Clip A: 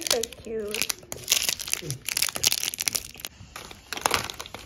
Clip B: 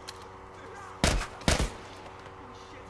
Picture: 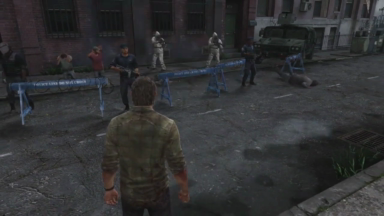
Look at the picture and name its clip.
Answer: B